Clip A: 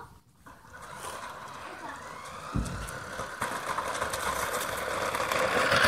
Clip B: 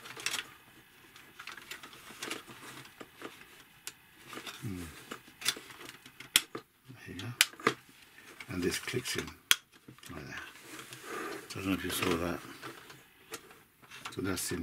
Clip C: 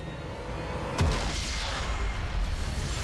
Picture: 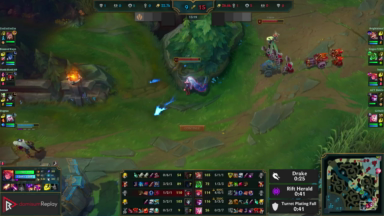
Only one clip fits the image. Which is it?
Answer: C